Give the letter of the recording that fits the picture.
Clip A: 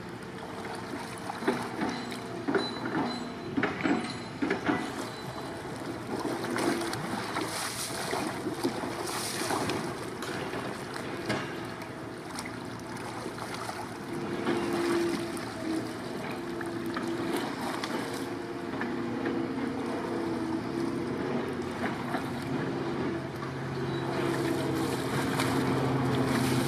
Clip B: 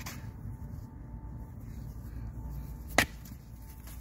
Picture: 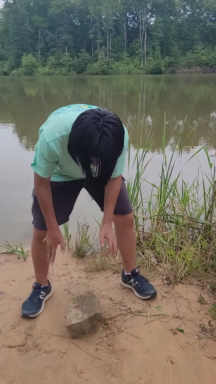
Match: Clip B